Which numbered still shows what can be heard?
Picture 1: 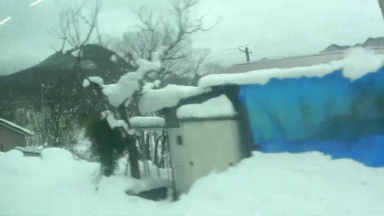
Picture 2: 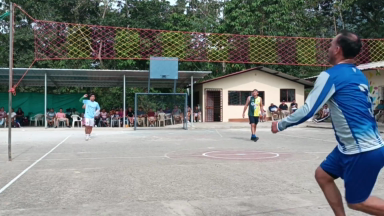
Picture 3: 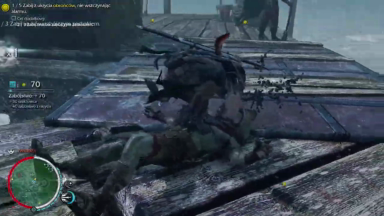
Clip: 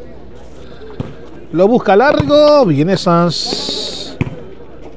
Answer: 2